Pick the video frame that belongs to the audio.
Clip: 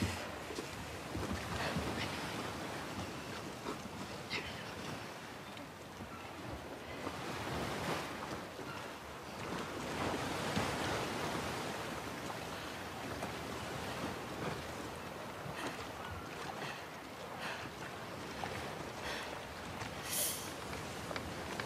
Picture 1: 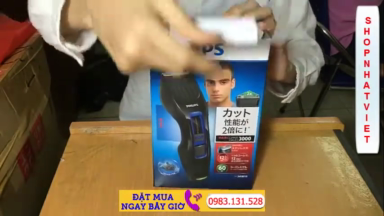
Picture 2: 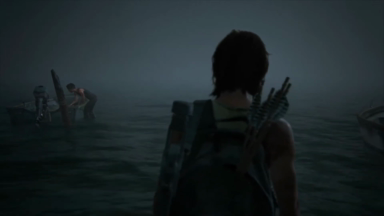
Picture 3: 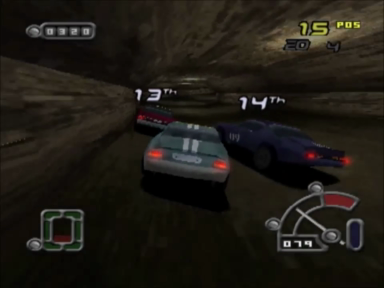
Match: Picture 2